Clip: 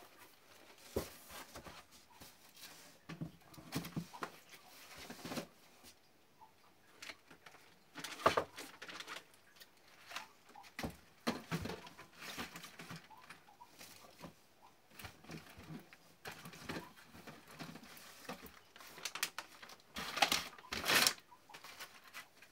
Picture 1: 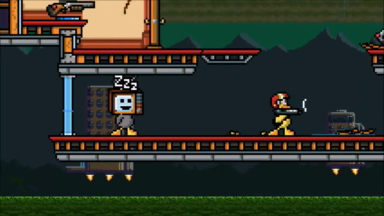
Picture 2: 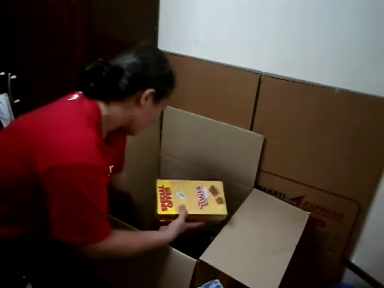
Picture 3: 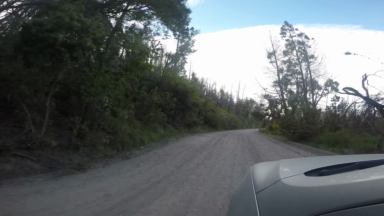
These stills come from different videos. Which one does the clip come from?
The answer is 2